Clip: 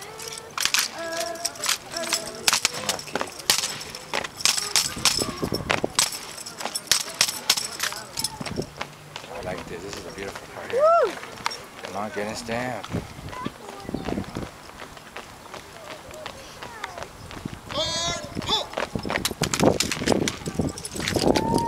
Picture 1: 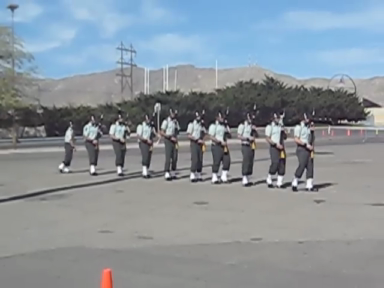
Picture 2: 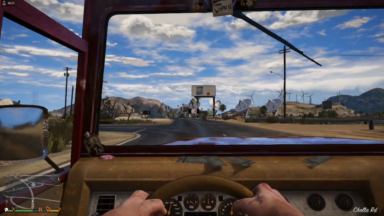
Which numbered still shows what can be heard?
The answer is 1